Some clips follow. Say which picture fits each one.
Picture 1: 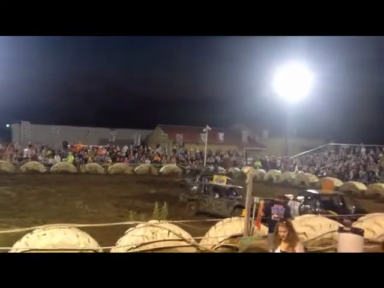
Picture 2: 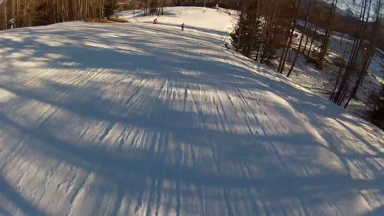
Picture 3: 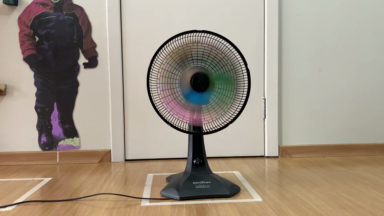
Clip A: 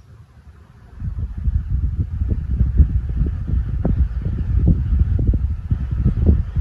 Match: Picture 3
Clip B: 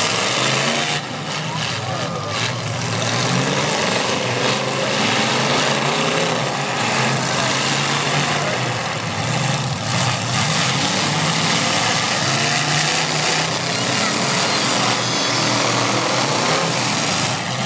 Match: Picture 1